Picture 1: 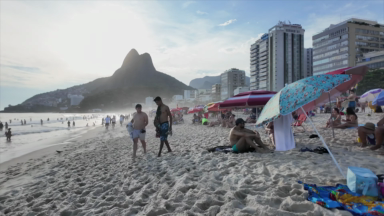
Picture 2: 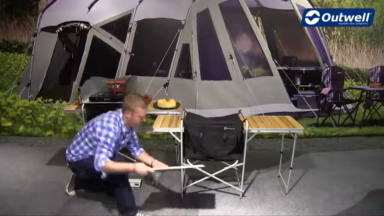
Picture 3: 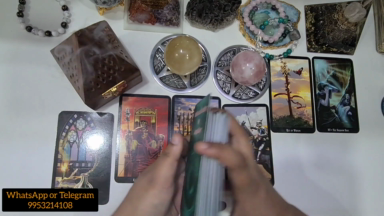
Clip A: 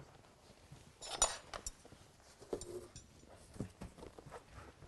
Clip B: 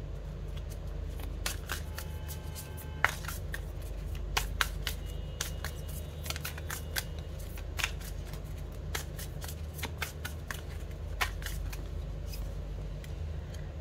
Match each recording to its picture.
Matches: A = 2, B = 3